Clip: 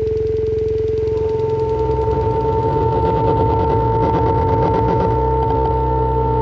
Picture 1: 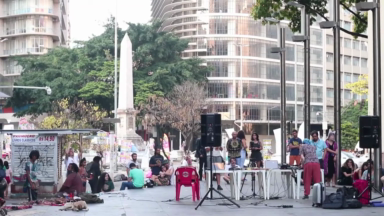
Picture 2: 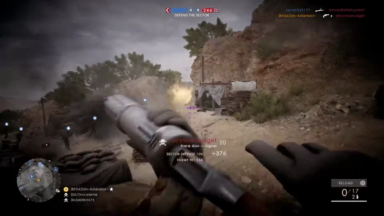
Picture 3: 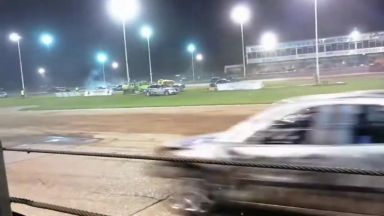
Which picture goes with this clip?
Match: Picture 1